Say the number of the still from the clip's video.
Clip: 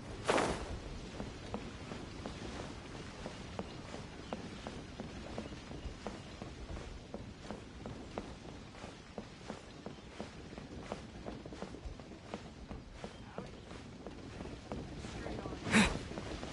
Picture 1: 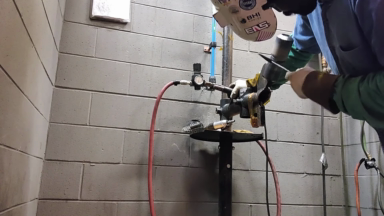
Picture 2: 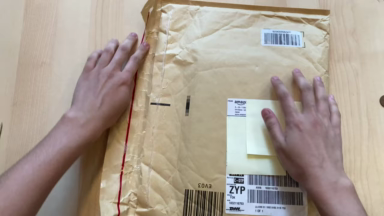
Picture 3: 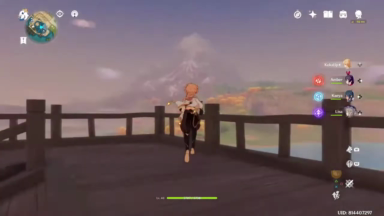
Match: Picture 3